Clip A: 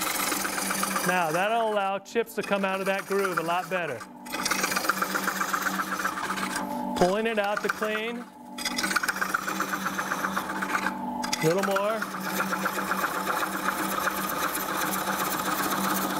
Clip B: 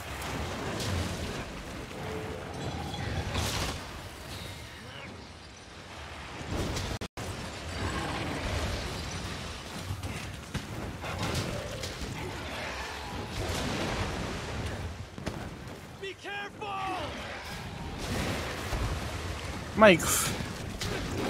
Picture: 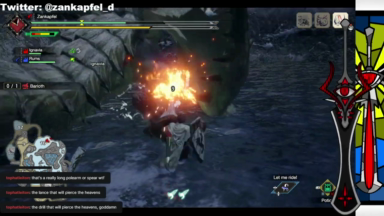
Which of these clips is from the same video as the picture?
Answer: B